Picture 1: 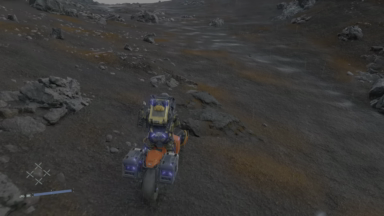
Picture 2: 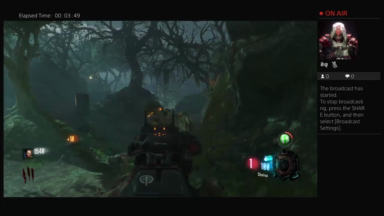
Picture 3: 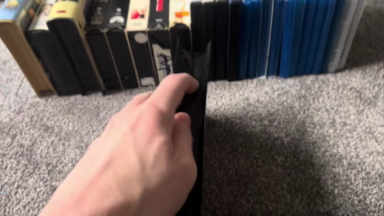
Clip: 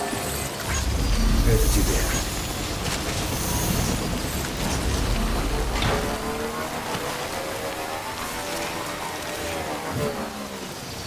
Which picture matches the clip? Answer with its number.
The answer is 1